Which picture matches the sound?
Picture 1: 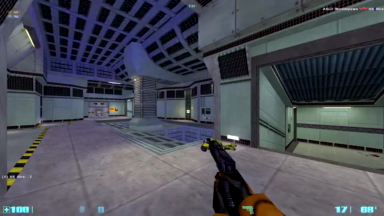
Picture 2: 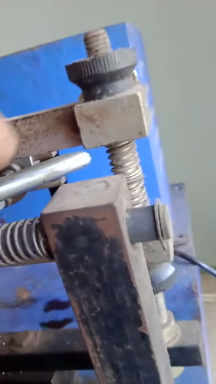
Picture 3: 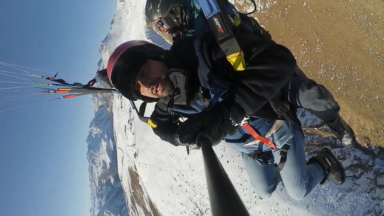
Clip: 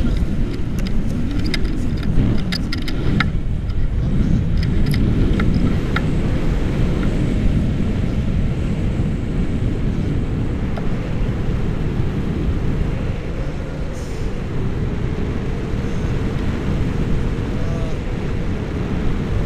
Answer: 3